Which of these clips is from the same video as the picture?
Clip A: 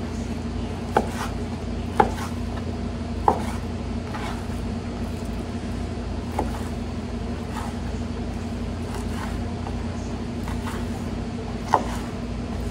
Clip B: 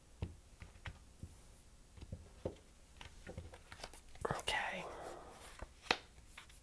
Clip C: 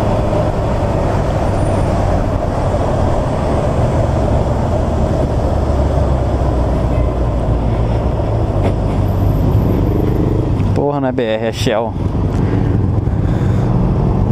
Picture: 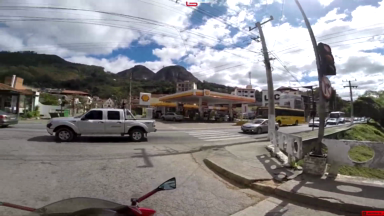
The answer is C